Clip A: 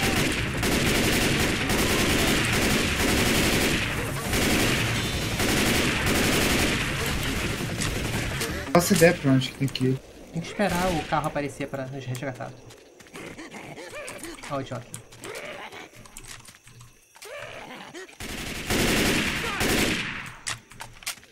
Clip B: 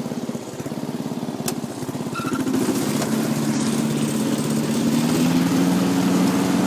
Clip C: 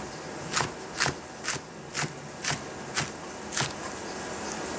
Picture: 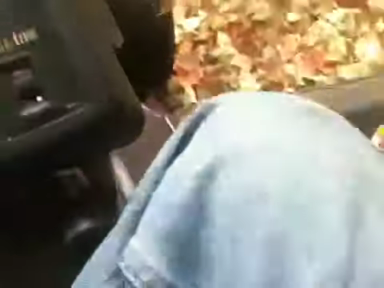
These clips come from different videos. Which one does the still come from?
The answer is B